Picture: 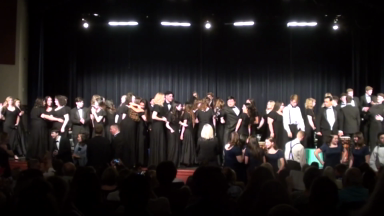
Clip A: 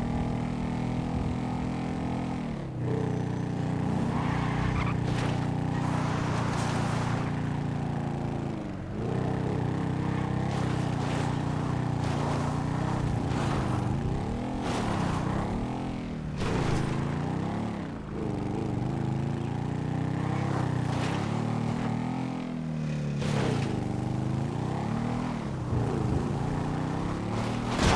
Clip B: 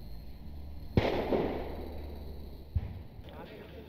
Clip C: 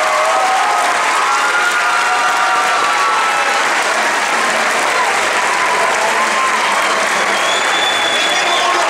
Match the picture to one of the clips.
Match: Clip C